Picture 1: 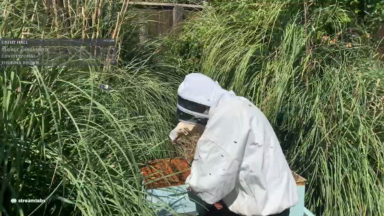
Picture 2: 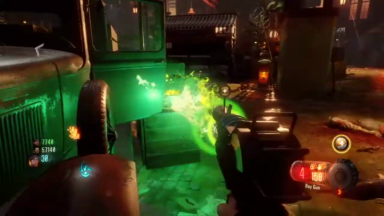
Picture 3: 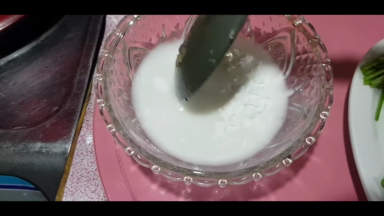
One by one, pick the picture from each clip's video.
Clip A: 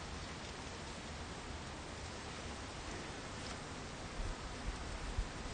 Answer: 1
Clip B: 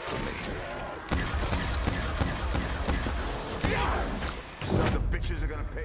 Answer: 2